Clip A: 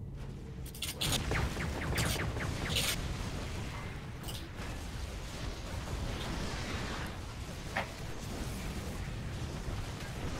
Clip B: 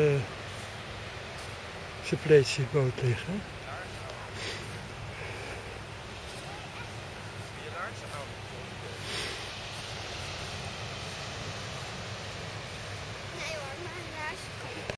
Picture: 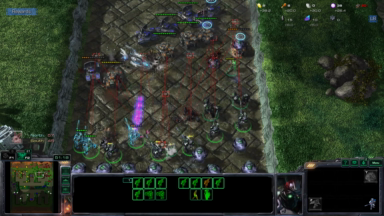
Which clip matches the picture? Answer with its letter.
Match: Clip A